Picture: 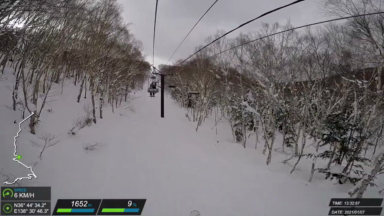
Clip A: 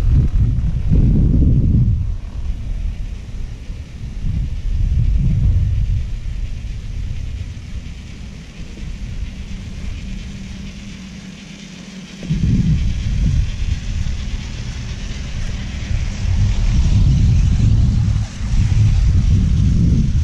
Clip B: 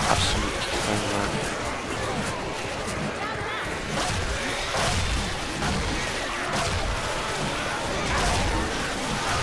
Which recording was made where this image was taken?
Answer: A